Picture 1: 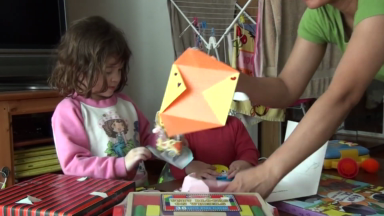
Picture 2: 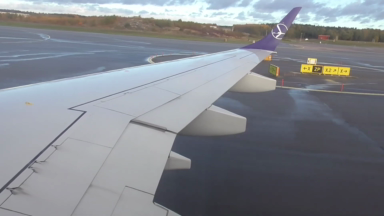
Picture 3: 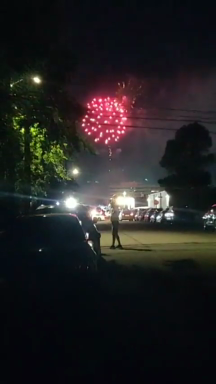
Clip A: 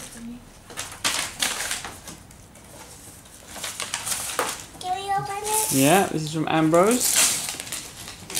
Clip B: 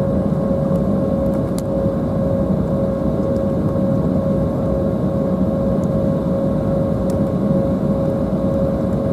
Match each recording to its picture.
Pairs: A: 1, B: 2